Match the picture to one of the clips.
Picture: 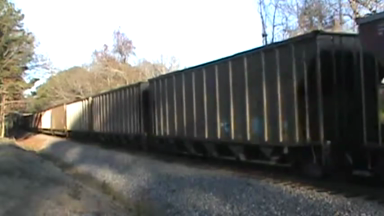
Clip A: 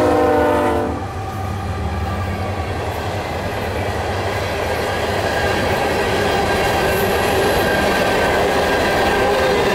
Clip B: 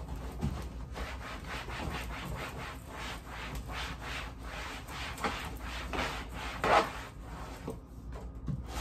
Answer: A